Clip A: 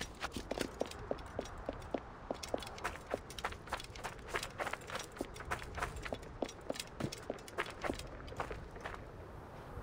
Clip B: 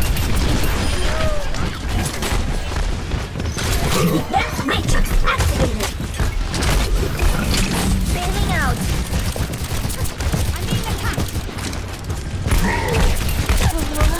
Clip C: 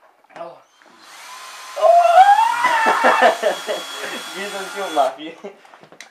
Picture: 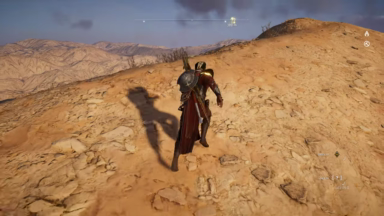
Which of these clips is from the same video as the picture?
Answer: A